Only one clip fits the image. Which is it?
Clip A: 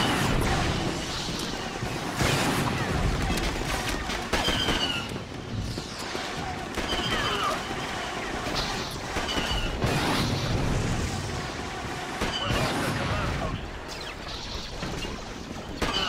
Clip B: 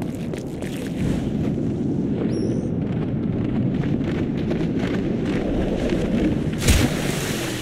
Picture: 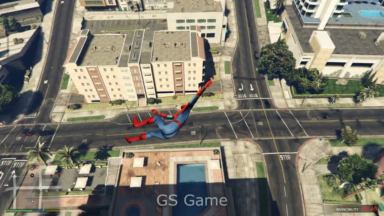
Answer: B